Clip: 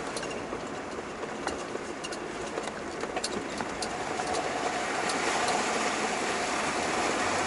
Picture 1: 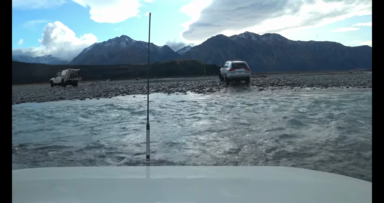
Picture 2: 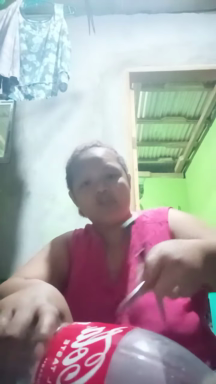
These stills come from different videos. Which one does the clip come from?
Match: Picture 1